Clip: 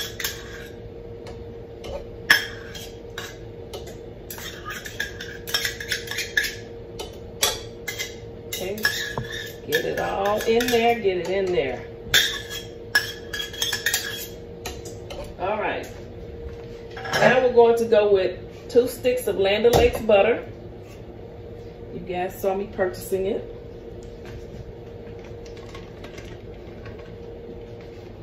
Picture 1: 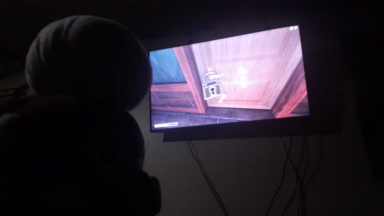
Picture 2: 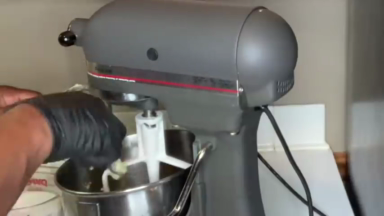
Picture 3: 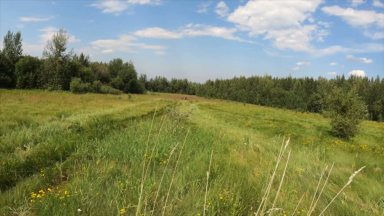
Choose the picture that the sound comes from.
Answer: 2